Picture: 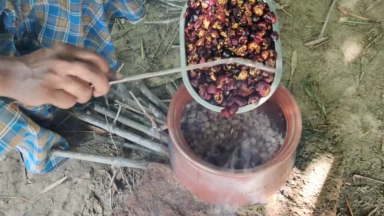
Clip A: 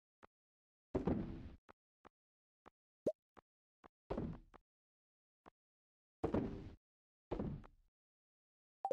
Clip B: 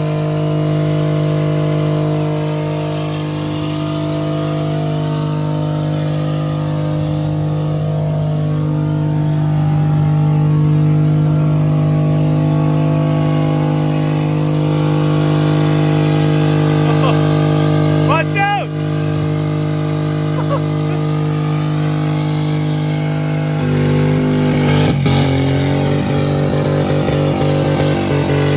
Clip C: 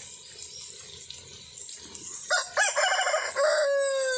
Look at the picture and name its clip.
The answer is C